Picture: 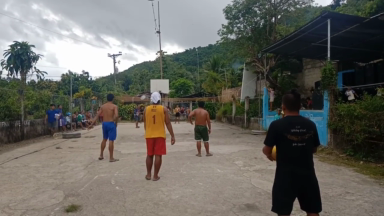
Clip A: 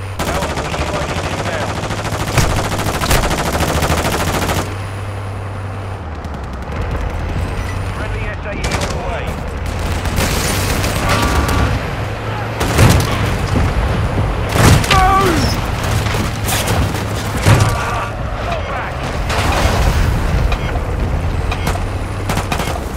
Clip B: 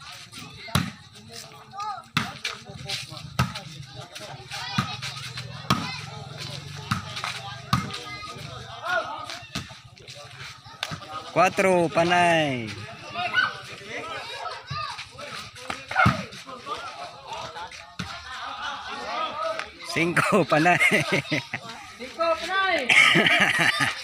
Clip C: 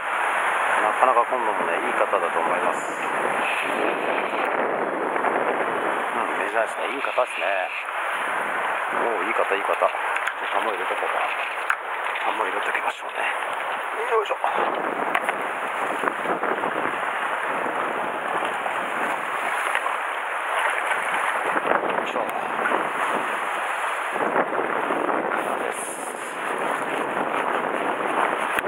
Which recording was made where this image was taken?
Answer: B